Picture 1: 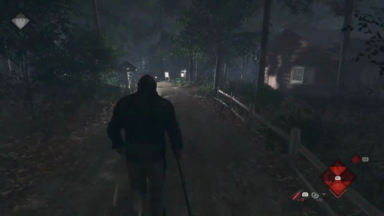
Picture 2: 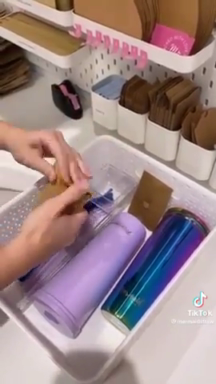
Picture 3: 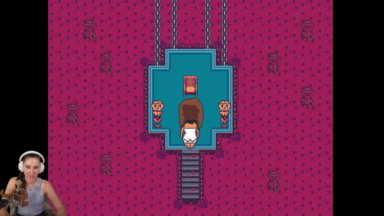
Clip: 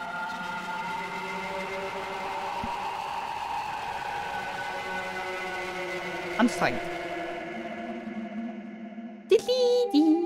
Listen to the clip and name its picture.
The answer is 3